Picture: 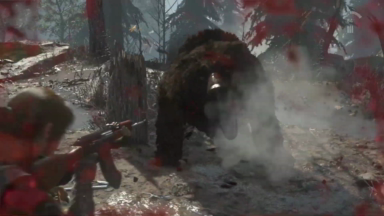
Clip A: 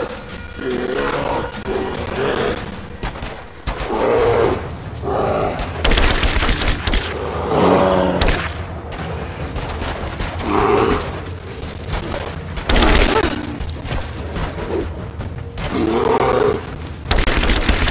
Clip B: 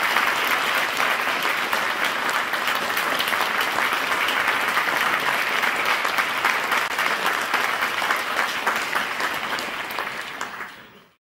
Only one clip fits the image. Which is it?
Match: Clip A